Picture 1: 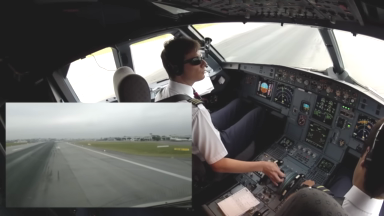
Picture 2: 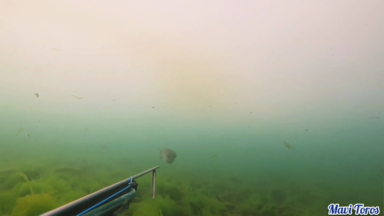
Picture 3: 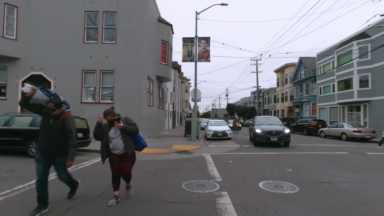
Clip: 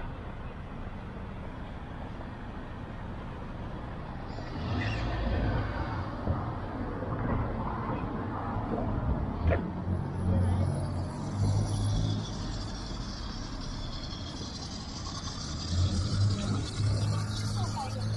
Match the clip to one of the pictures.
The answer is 3